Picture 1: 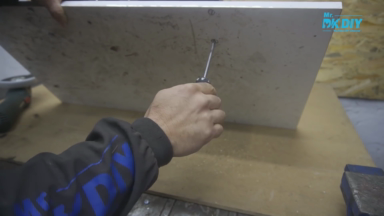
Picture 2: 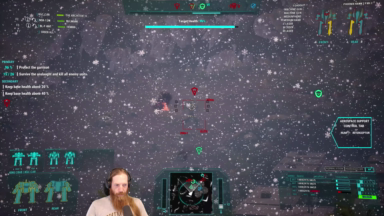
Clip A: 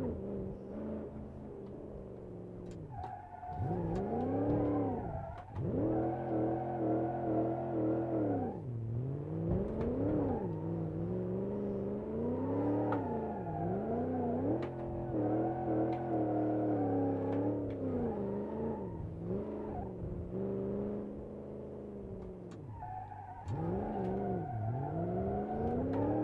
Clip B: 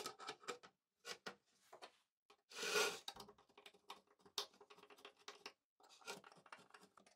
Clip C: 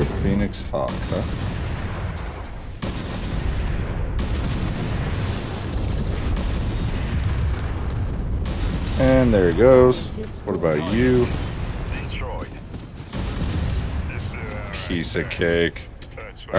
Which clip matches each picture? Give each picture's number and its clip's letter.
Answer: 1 B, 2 C